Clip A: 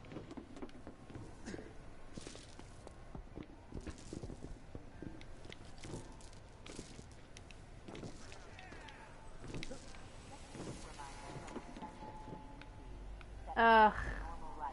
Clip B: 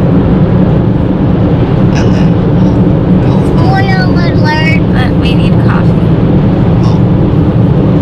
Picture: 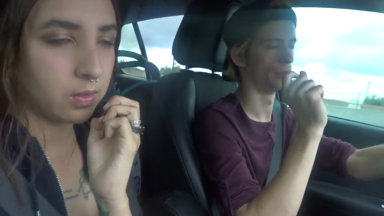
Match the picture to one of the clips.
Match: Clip B